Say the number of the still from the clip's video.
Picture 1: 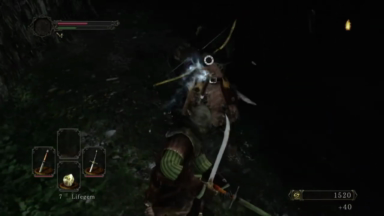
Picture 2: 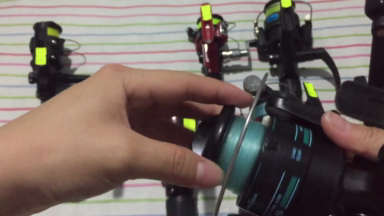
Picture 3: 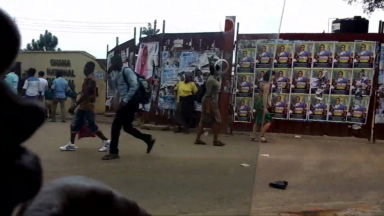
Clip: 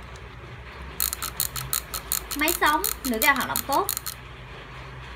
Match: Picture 2